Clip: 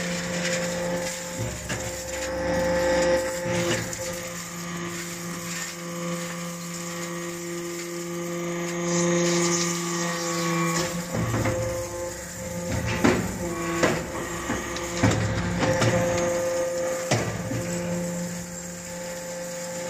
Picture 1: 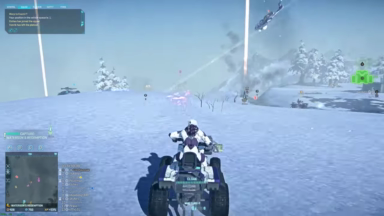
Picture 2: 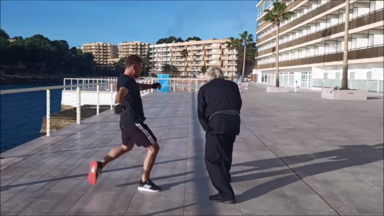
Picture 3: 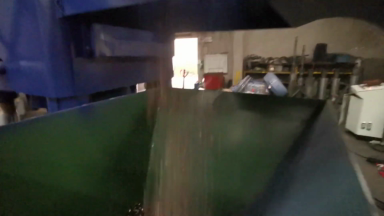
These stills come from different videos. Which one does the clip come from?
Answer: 3